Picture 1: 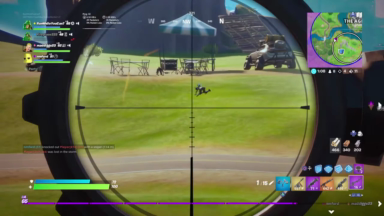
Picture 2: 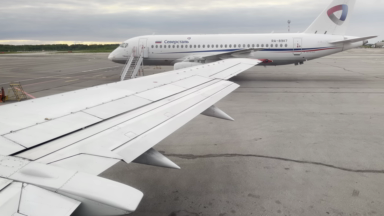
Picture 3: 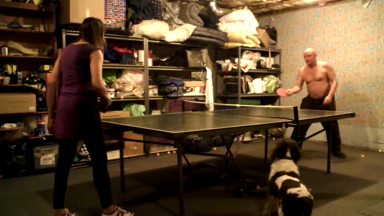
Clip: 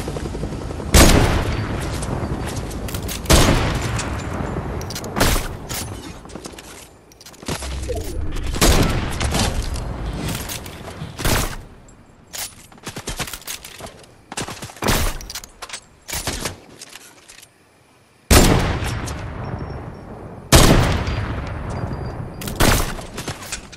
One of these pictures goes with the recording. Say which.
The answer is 1